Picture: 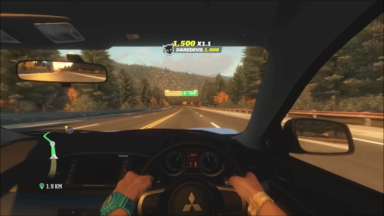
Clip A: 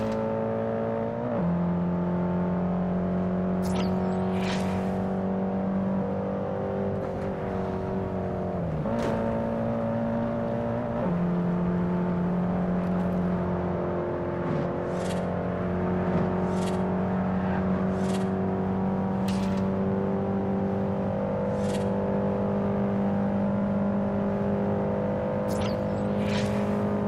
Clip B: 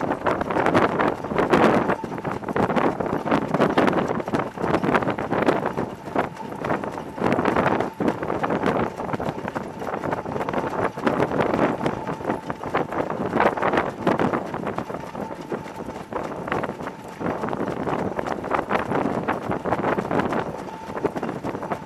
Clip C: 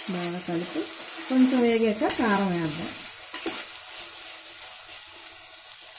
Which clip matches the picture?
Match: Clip A